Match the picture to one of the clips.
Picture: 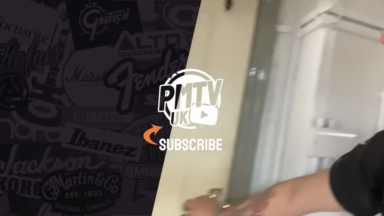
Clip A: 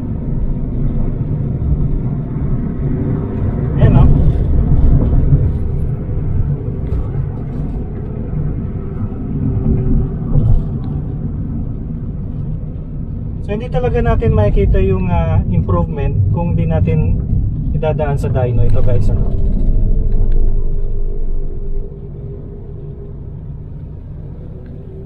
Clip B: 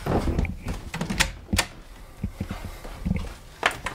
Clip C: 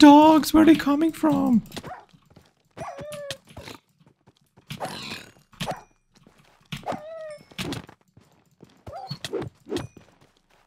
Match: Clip B